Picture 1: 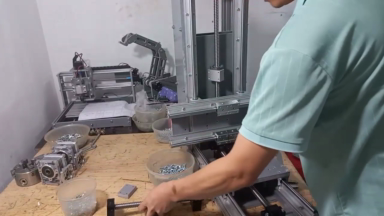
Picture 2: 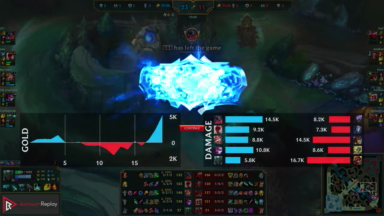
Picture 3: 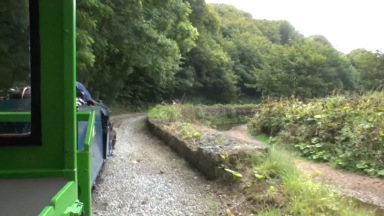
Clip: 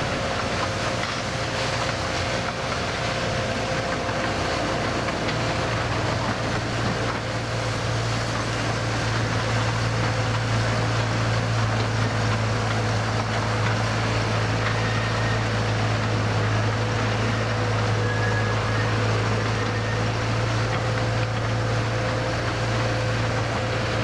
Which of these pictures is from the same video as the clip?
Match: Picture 3